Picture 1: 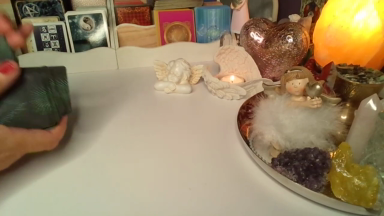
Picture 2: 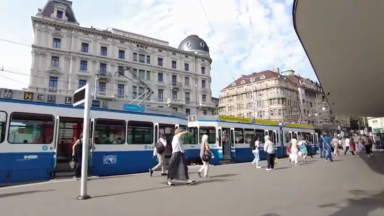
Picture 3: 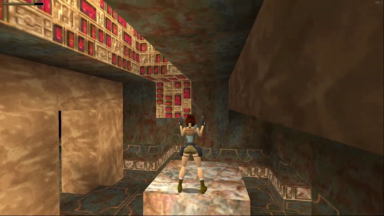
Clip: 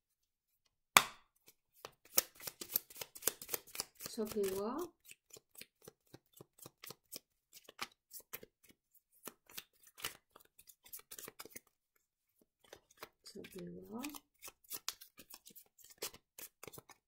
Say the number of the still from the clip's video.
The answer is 1